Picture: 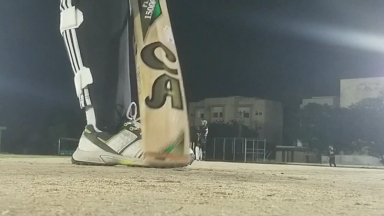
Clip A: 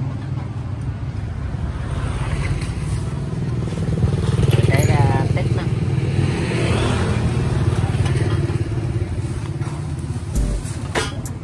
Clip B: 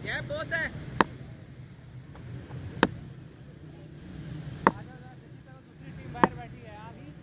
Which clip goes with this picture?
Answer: B